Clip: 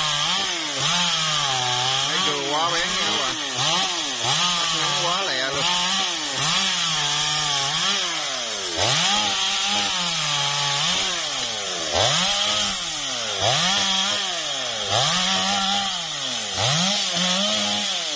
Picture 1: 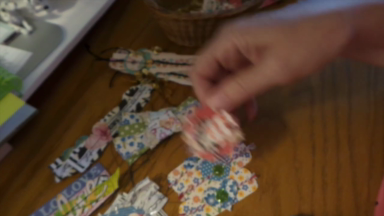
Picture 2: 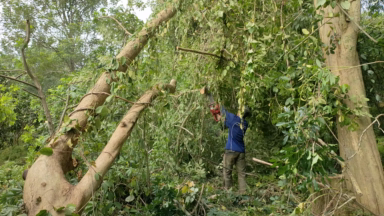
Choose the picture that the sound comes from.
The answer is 2